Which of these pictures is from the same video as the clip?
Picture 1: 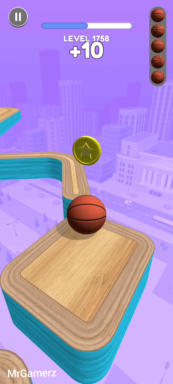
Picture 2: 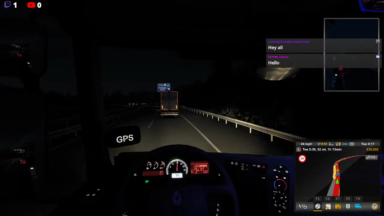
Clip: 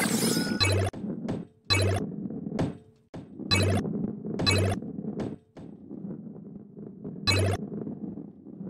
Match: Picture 1